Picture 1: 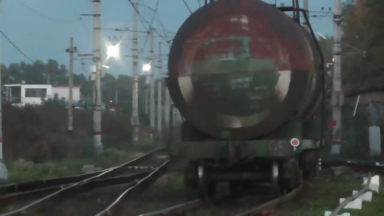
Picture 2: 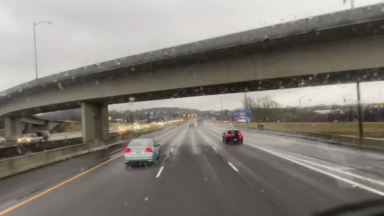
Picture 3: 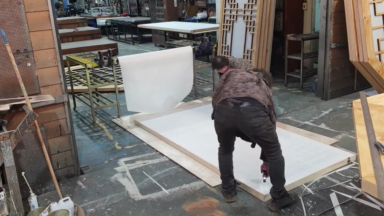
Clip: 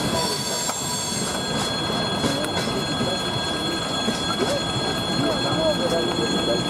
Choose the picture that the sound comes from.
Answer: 1